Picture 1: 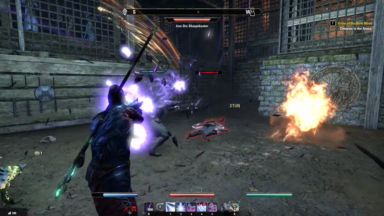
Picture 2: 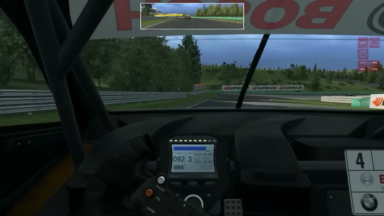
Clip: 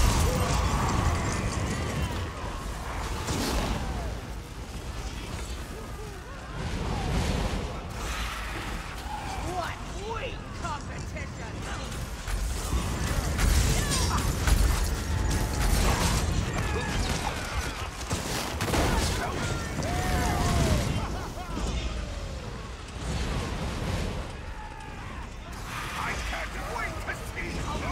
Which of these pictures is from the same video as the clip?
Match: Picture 1